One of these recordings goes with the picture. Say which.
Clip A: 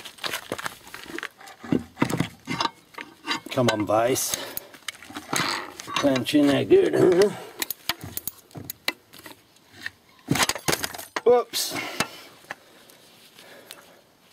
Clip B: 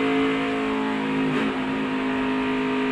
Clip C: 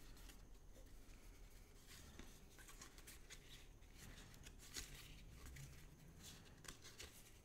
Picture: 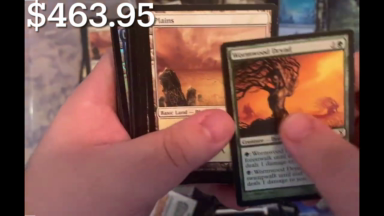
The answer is C